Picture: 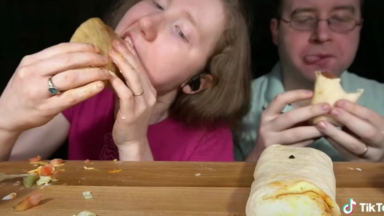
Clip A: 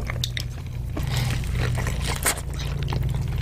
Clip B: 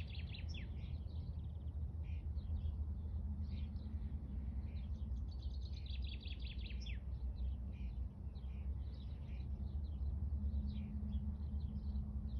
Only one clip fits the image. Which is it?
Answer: A